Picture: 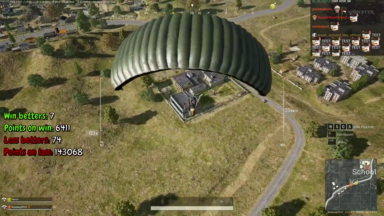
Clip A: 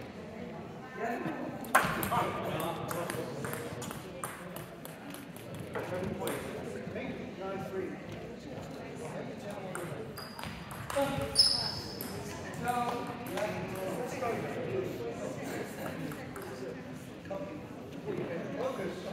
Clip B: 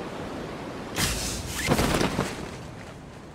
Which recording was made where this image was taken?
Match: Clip B